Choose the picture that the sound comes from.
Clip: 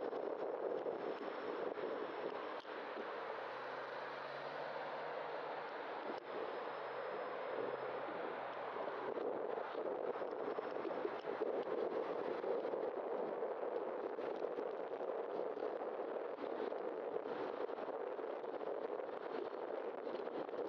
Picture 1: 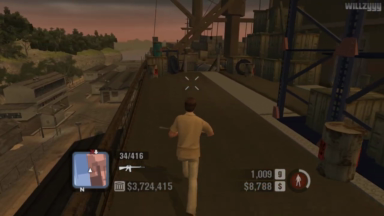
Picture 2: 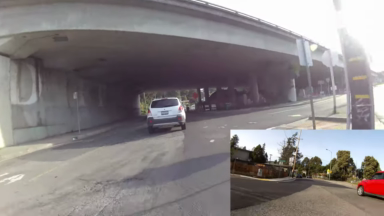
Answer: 2